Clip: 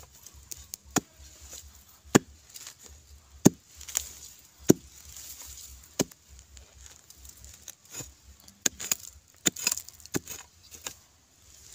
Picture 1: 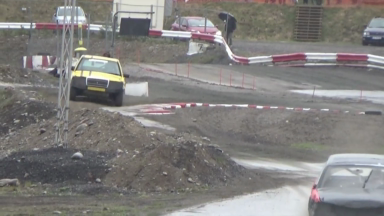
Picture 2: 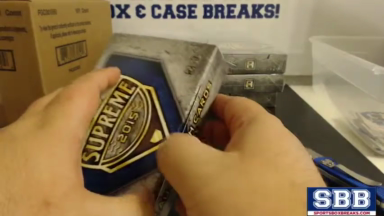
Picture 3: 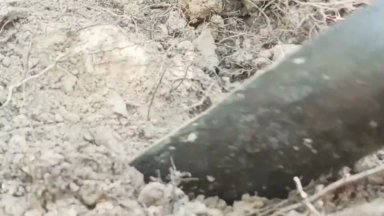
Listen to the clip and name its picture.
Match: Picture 3